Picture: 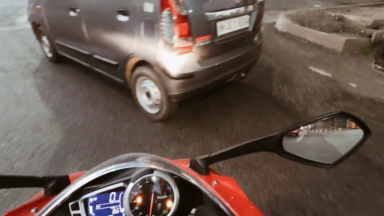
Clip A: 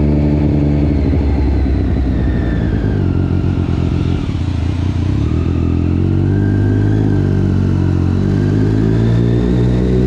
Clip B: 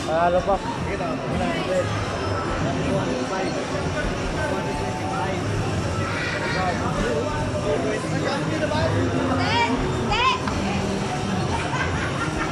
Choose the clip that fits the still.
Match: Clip A